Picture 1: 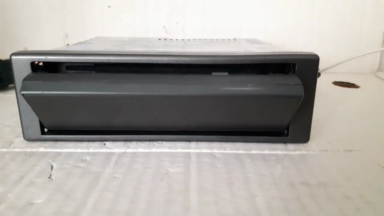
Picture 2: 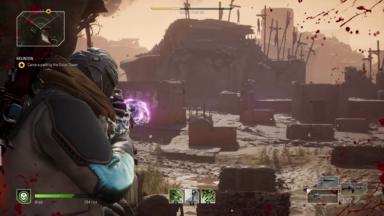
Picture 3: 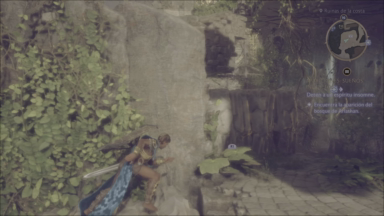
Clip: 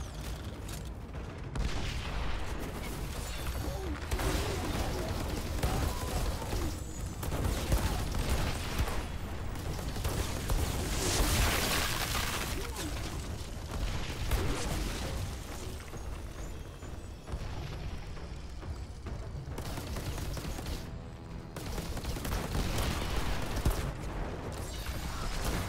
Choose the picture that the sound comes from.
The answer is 2